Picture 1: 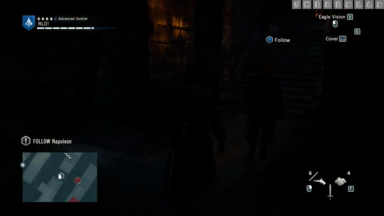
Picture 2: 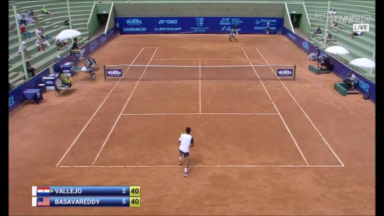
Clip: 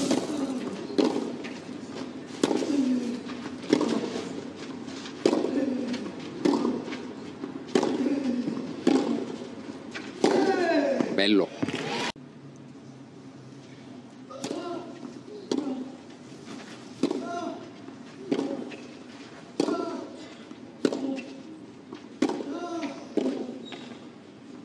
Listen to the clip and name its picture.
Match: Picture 2